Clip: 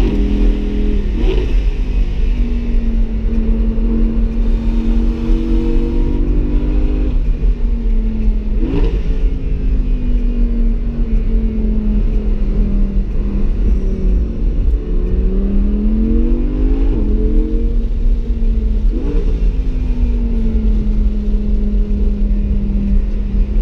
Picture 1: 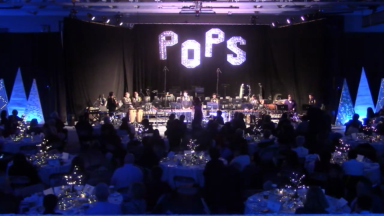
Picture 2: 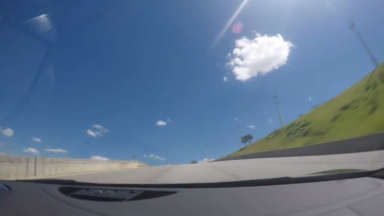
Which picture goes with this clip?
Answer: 2